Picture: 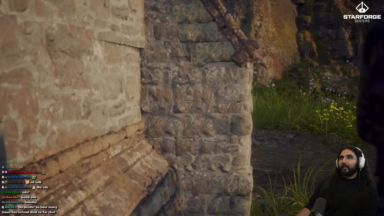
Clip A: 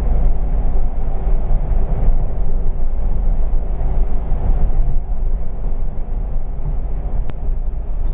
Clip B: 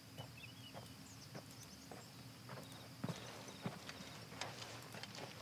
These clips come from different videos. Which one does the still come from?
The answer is B